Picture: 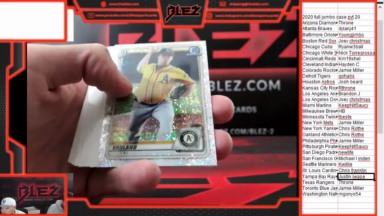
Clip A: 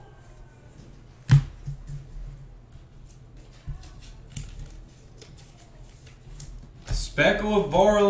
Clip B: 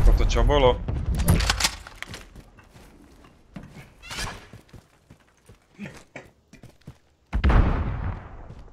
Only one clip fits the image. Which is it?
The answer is A